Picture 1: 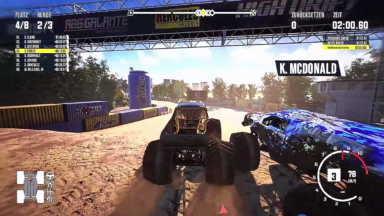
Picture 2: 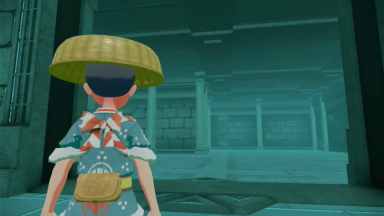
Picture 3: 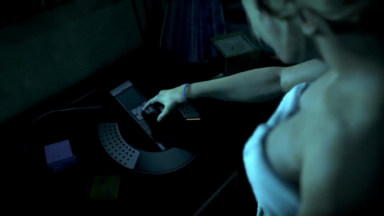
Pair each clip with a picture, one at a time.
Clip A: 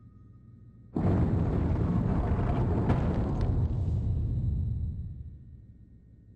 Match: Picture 2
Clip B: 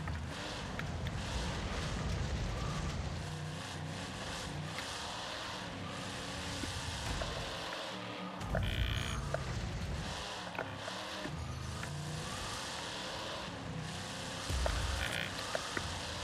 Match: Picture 1